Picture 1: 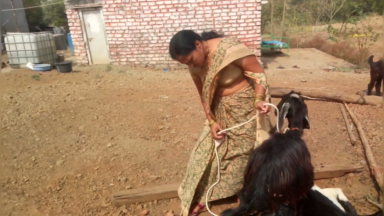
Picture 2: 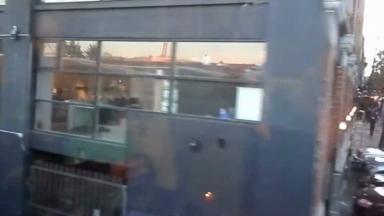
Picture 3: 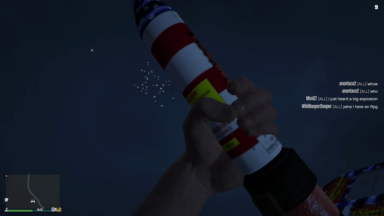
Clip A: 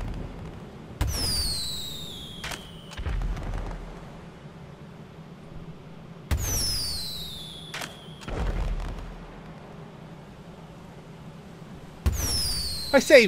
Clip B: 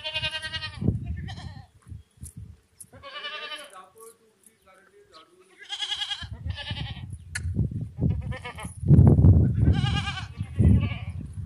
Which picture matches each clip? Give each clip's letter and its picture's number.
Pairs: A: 3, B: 1